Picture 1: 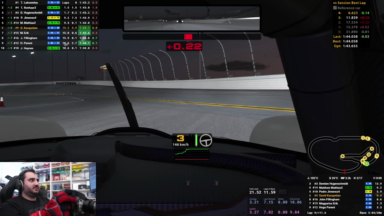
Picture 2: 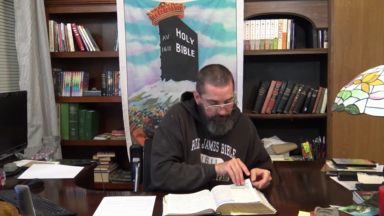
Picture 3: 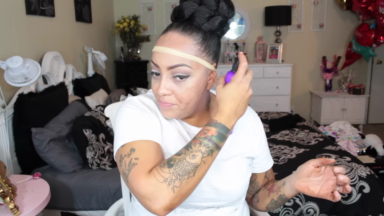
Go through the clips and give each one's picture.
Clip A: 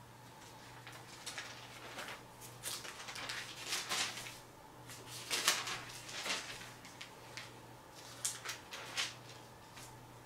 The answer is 2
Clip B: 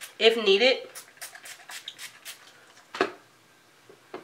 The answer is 3